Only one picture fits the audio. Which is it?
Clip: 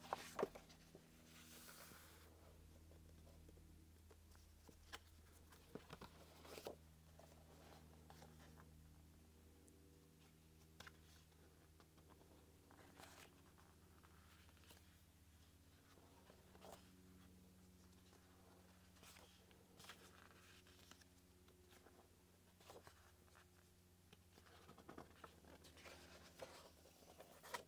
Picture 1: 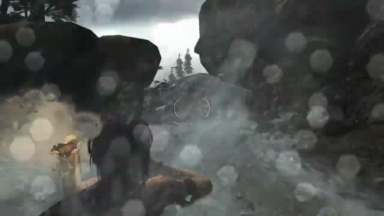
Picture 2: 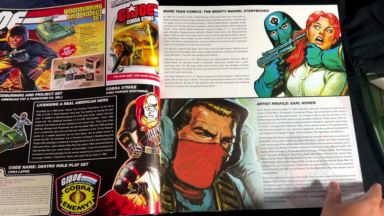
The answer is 2